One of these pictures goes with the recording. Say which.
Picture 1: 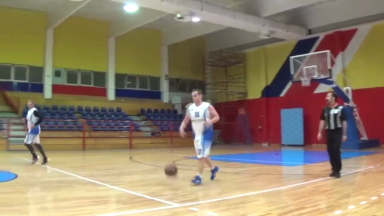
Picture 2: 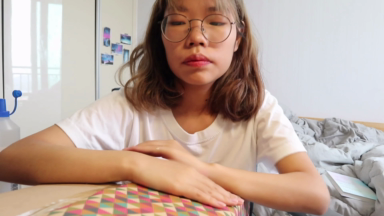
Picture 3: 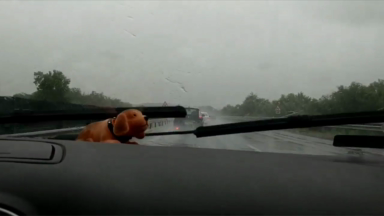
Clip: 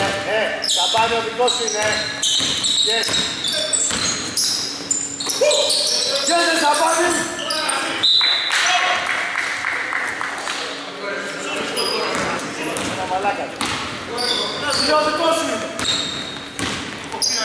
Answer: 1